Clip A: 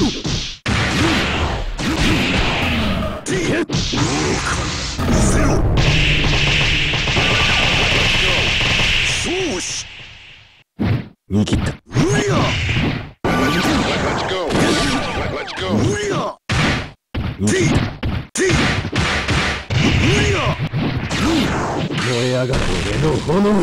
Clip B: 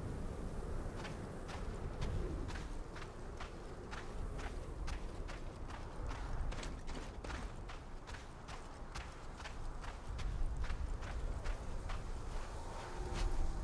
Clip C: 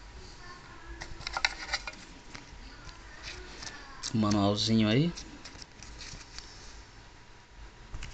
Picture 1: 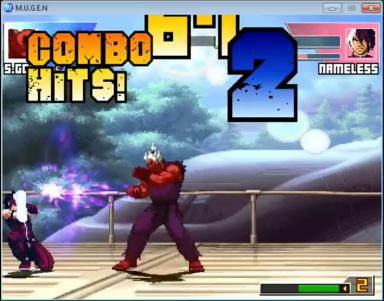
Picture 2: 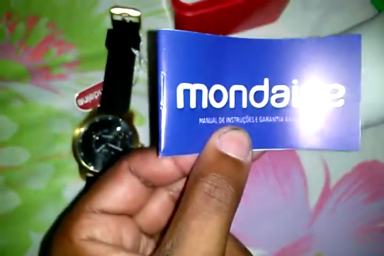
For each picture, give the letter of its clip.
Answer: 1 A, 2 C